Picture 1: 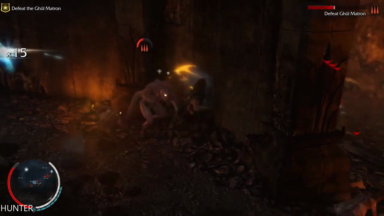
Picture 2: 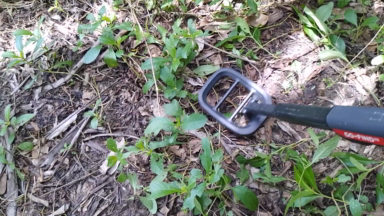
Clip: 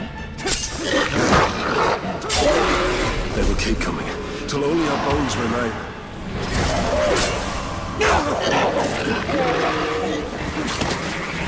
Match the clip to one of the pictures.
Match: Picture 1